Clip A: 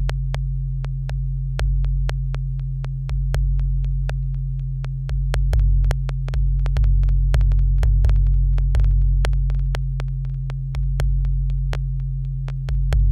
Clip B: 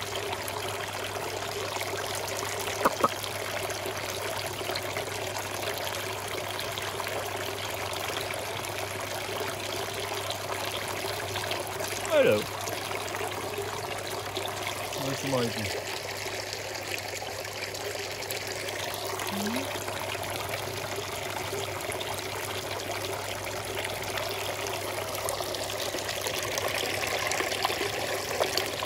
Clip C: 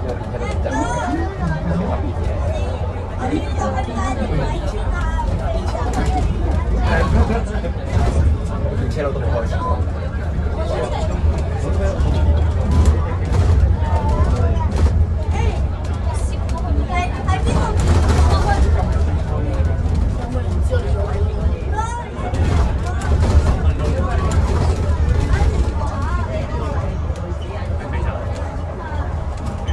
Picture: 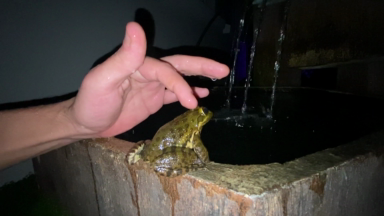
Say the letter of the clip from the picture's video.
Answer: B